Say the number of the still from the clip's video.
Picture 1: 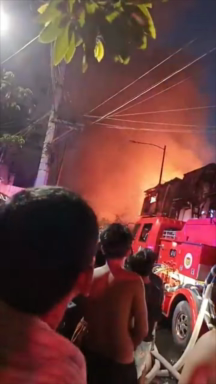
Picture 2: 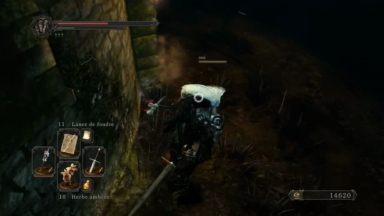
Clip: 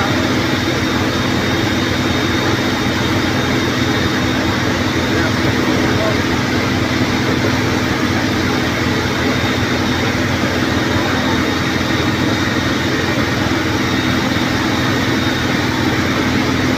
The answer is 1